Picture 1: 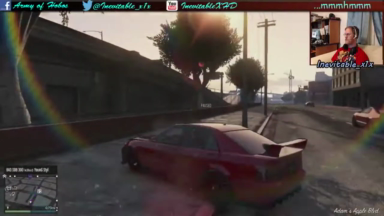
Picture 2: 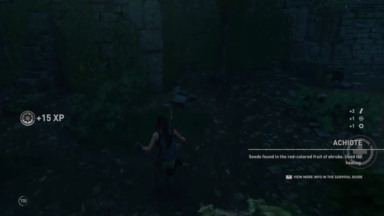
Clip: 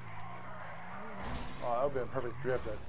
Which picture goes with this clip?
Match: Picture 1